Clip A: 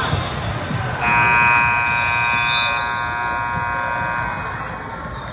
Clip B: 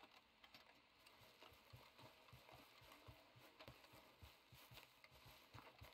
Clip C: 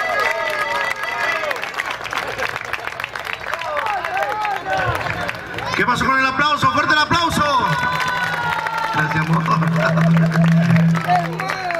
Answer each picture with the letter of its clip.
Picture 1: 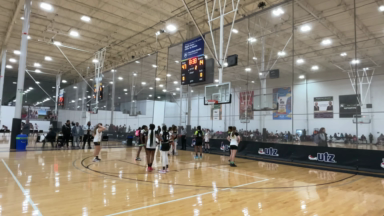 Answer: A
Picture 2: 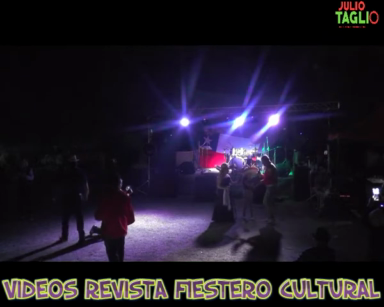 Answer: C